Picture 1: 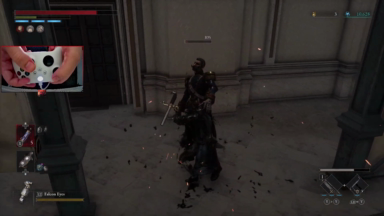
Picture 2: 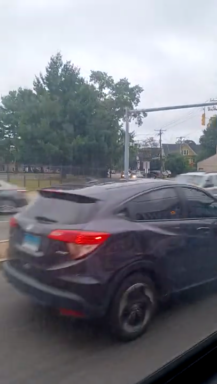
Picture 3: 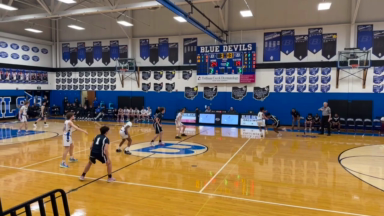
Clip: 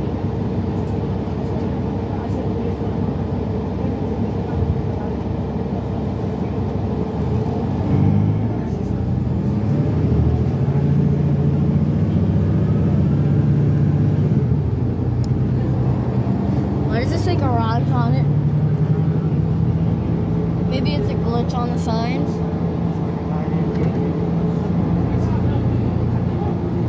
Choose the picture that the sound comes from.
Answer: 2